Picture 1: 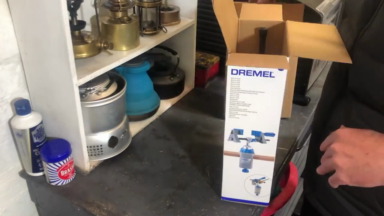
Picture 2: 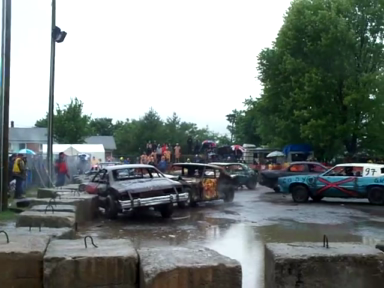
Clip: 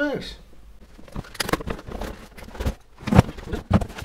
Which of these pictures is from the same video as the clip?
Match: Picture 1